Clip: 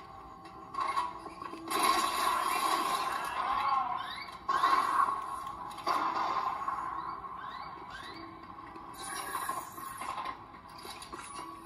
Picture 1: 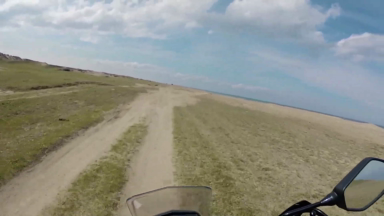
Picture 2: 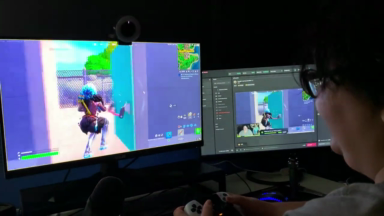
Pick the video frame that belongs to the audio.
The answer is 2